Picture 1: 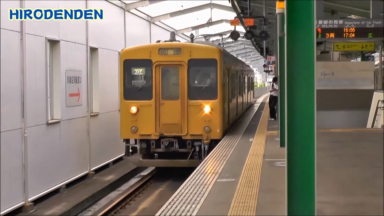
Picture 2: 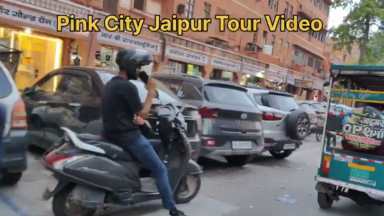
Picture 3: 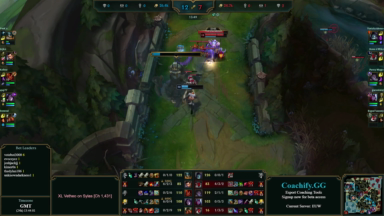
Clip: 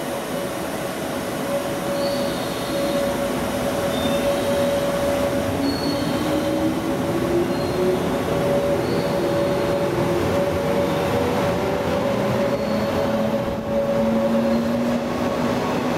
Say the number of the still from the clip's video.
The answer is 1